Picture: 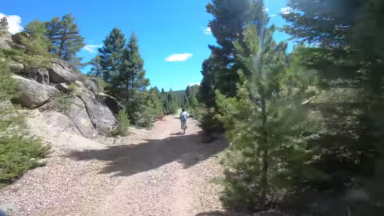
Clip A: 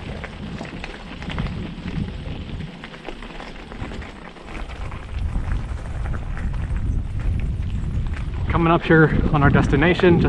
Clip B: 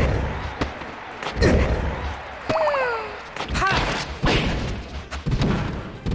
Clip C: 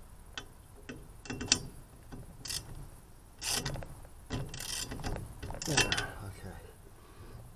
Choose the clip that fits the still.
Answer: A